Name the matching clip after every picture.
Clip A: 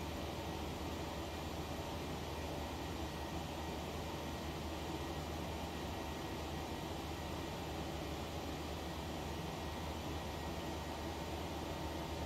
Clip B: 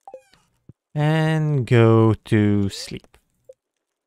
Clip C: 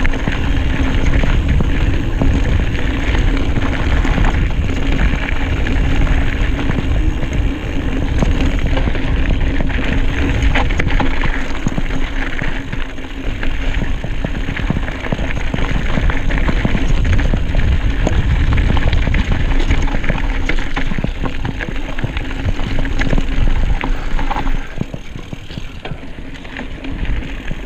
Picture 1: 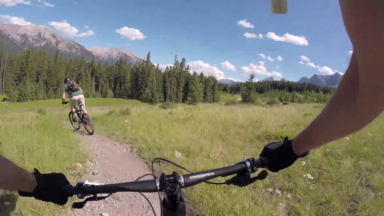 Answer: C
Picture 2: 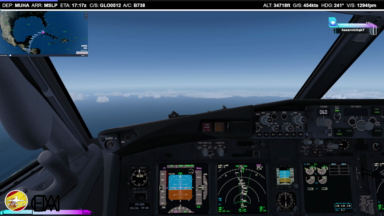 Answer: A